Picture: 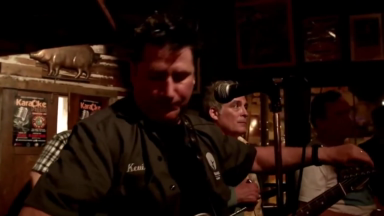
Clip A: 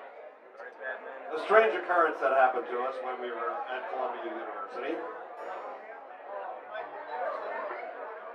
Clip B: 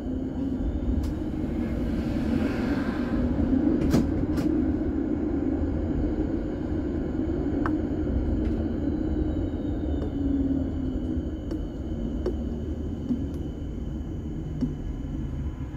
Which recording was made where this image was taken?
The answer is A